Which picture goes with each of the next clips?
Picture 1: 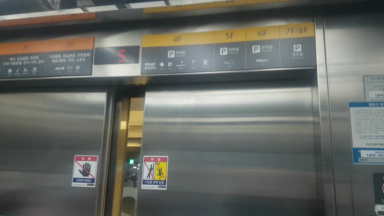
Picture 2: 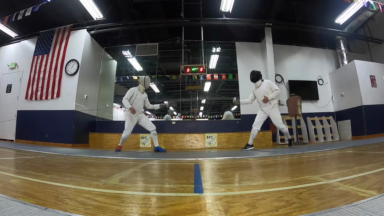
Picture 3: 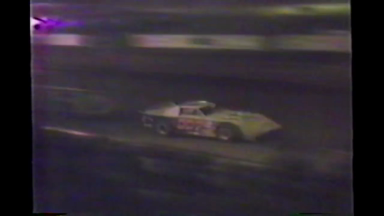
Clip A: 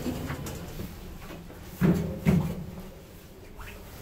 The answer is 1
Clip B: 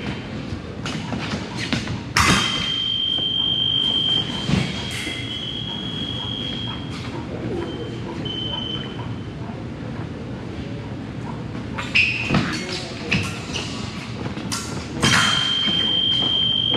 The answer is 2